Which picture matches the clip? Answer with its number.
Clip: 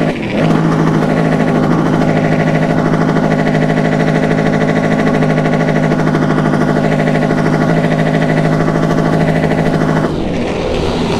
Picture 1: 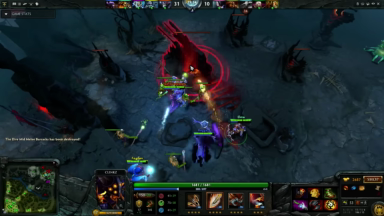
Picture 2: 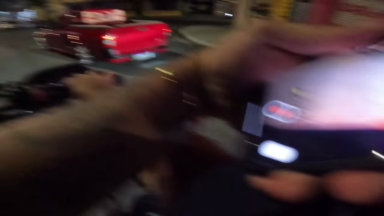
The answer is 2